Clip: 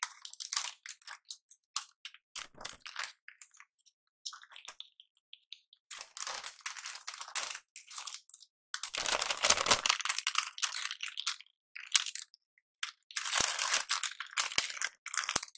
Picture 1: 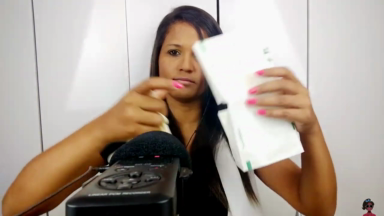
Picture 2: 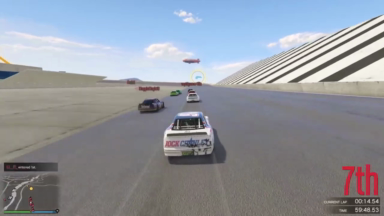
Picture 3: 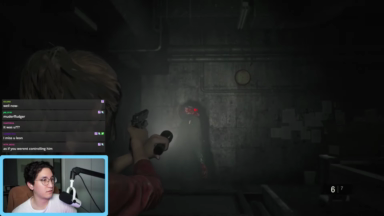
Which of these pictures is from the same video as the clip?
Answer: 1